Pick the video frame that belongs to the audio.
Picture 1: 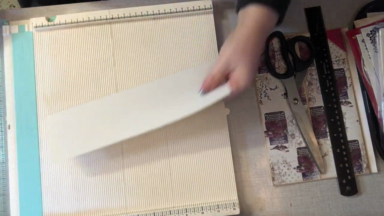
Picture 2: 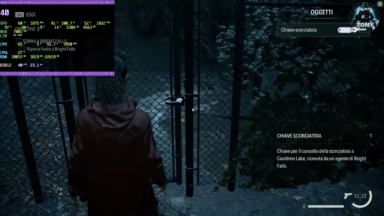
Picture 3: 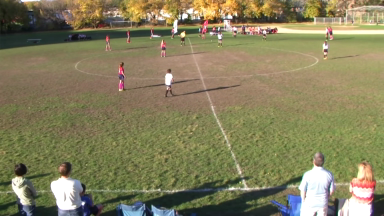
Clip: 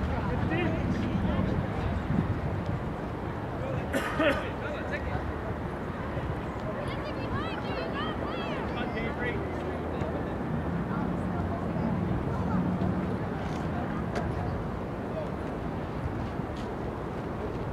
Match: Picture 3